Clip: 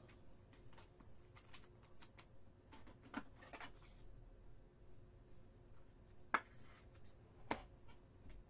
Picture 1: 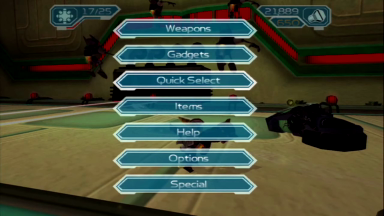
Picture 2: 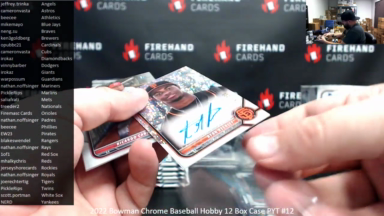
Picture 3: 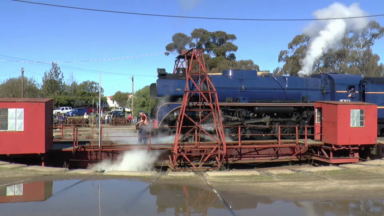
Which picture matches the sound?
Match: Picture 2